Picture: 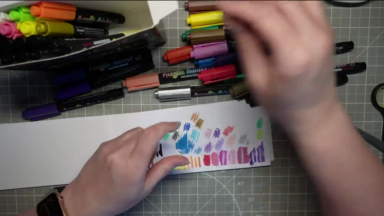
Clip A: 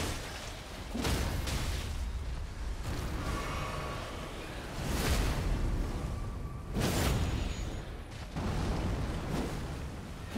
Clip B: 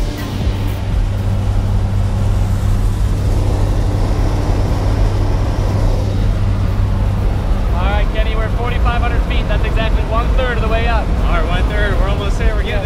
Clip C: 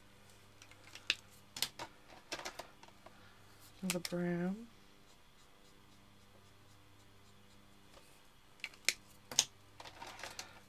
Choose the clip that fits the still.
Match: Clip C